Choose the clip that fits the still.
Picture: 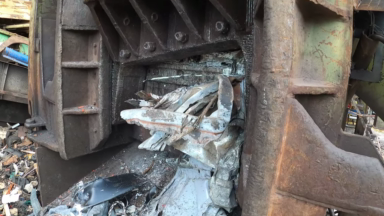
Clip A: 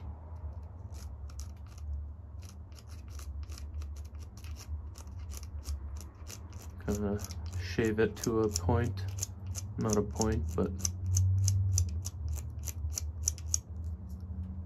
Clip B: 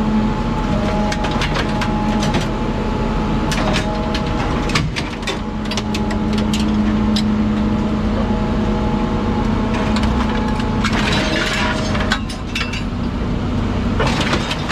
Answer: B